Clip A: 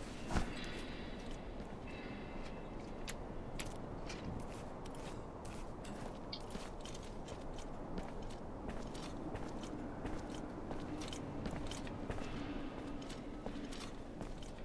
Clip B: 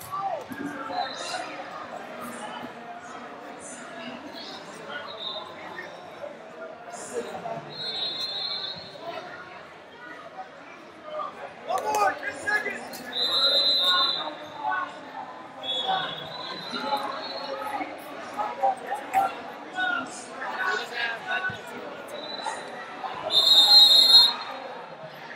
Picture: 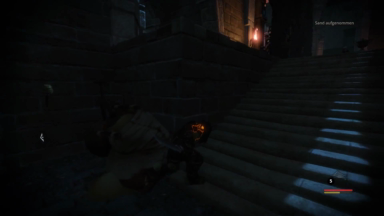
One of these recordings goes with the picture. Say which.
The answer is A